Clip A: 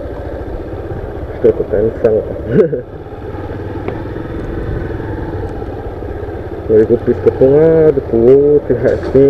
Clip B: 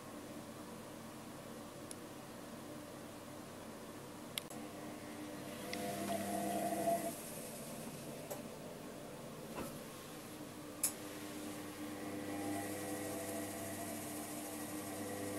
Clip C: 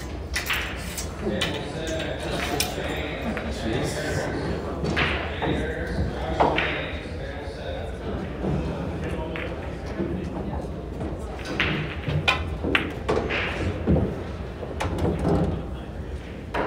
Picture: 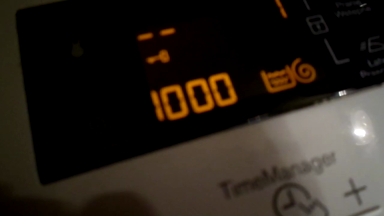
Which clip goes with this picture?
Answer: B